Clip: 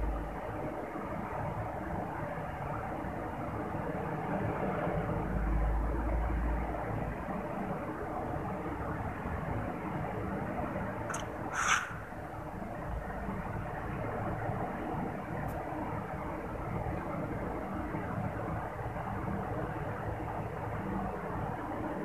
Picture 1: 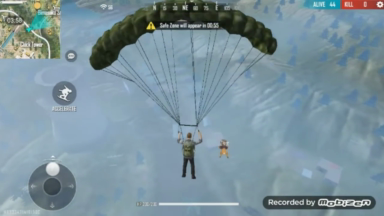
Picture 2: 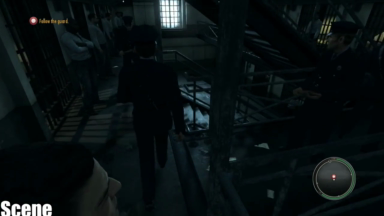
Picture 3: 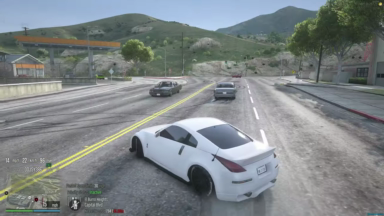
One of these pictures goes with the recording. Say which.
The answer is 1